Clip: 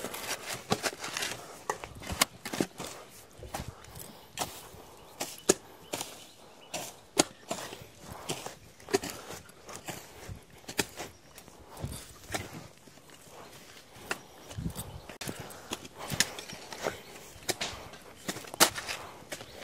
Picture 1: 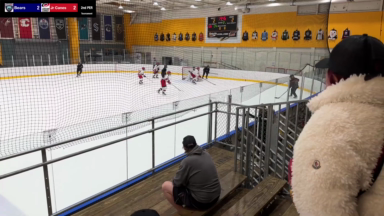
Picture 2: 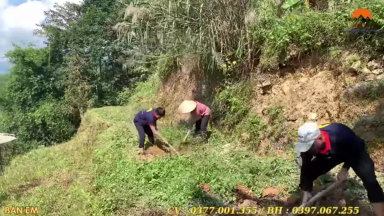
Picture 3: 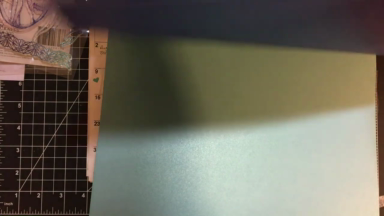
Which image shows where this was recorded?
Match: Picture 2